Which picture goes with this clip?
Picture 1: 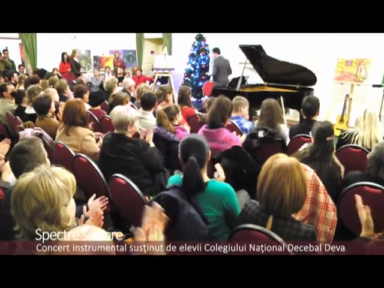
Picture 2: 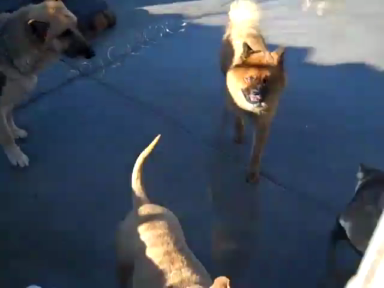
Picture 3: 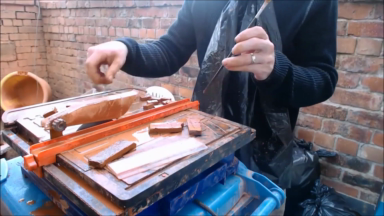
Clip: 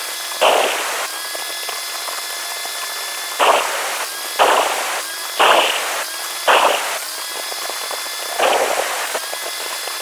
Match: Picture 3